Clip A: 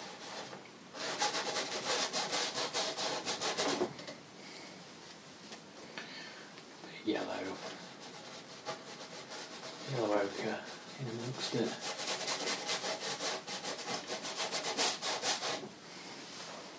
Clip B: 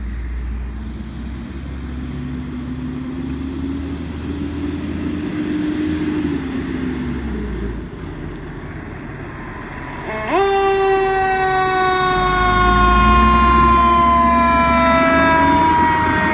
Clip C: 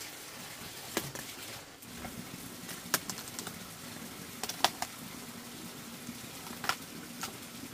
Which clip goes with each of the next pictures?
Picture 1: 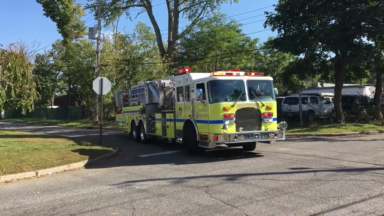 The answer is B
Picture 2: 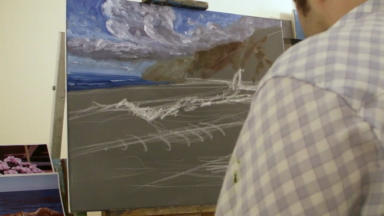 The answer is A